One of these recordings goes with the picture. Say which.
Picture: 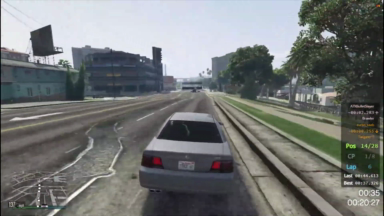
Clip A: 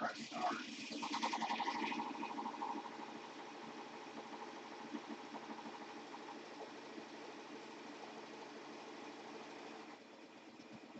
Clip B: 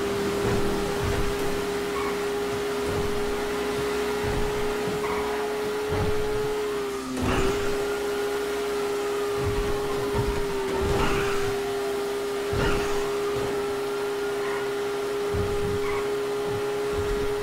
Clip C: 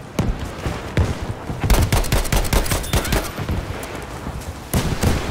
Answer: B